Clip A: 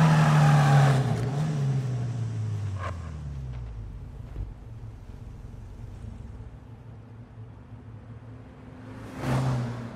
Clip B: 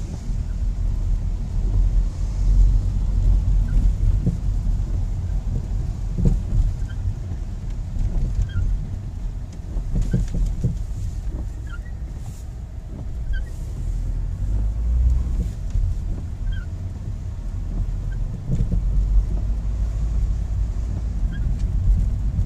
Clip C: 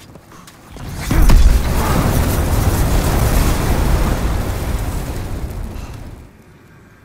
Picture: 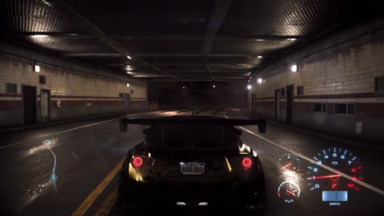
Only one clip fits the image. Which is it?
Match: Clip A